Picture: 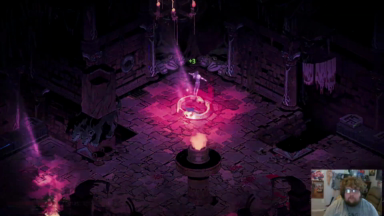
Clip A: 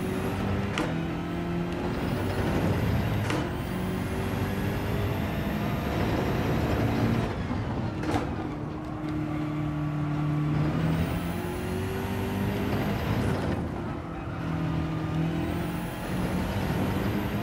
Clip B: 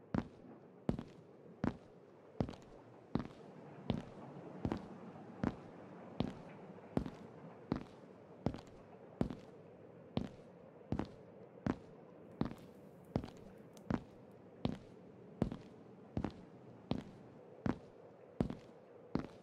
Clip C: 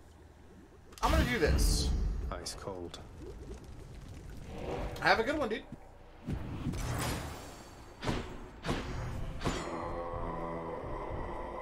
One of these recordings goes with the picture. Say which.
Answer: C